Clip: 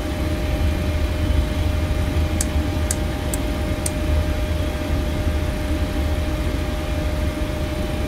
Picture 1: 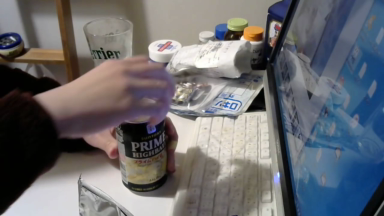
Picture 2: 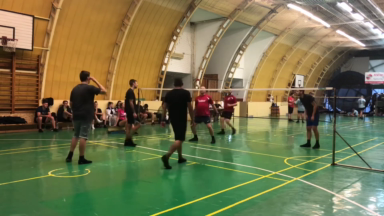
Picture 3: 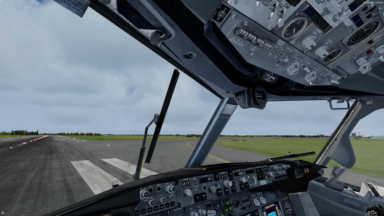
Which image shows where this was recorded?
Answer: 3